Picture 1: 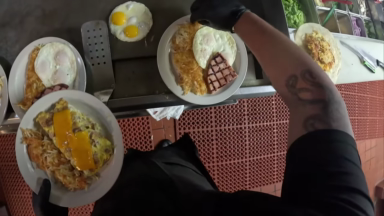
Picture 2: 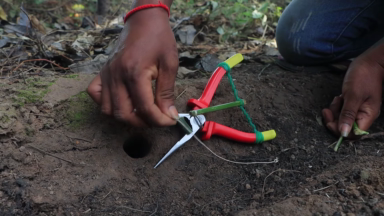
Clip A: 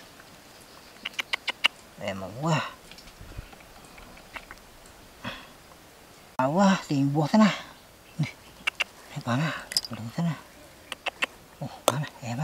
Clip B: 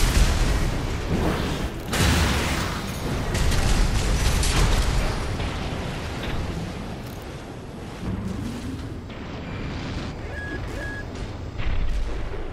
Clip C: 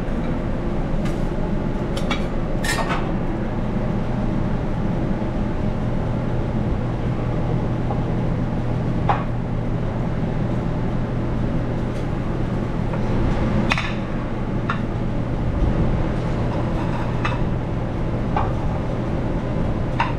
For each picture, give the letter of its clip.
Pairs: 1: C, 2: A